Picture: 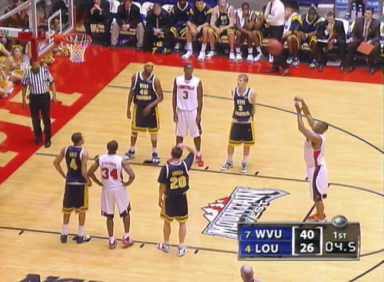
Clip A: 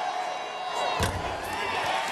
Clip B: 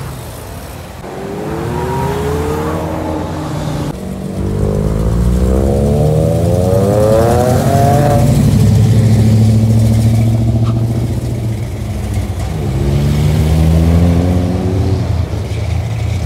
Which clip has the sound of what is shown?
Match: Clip A